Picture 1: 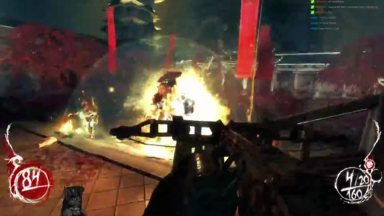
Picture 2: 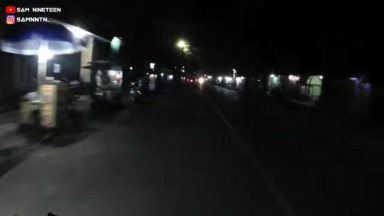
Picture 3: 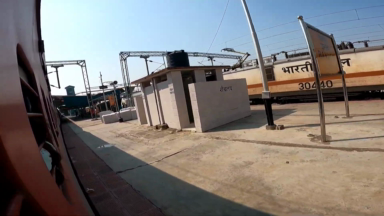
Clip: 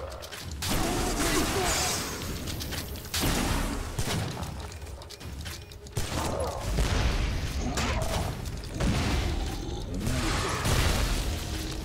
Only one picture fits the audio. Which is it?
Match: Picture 1